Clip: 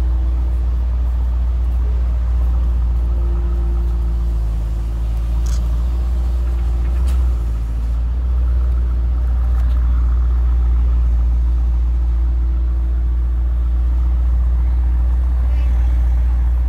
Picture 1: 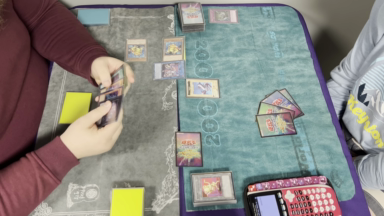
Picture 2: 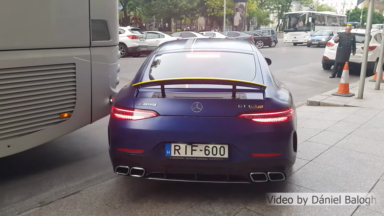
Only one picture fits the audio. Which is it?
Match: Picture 2